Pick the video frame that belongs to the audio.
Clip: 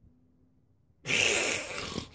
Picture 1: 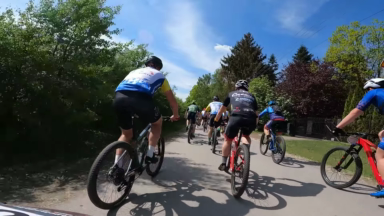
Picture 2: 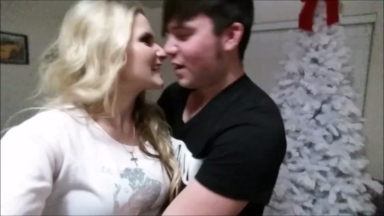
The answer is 2